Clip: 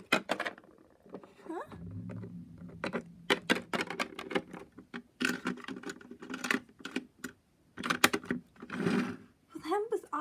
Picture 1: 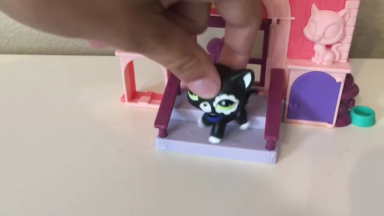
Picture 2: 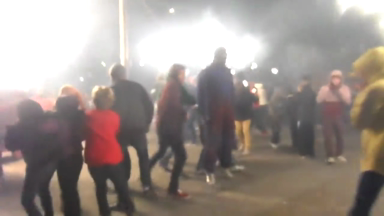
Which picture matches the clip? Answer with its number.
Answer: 1